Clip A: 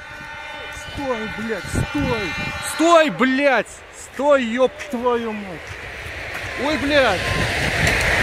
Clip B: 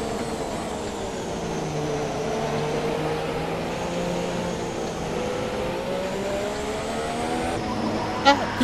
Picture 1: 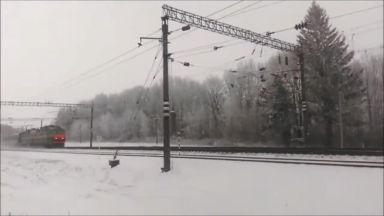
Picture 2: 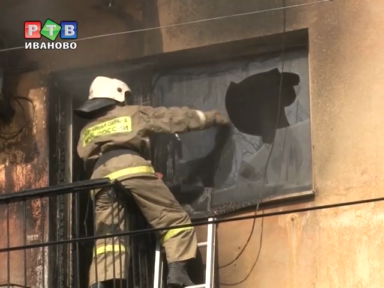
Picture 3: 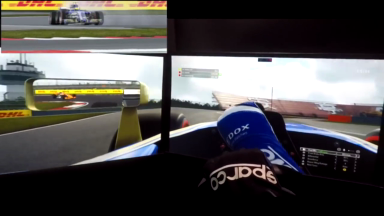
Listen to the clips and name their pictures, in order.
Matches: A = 1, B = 3